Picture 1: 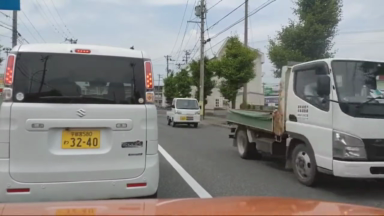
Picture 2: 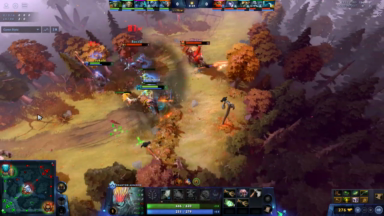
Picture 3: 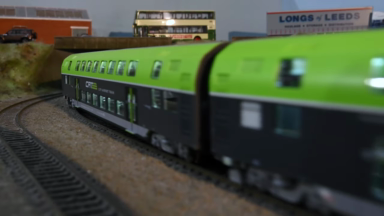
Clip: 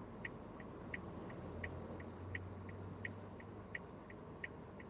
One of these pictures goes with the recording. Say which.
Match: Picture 1